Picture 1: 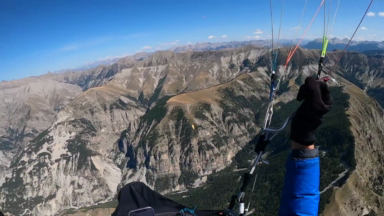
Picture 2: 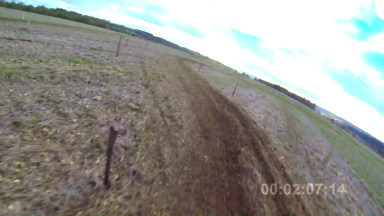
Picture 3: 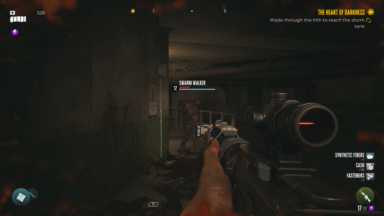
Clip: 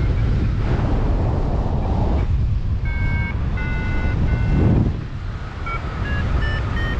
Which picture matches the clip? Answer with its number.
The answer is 1